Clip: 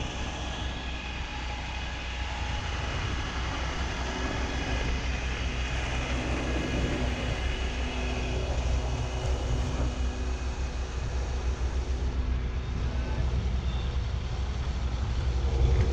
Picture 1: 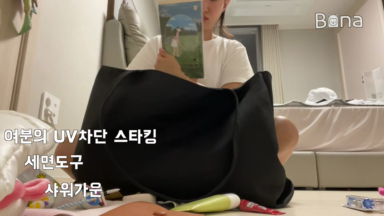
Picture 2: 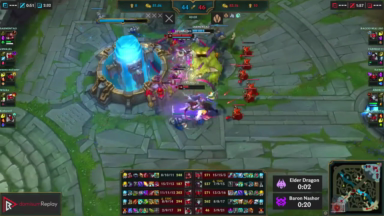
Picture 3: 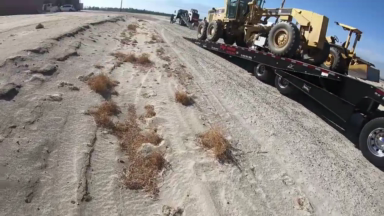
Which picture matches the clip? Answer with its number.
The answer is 3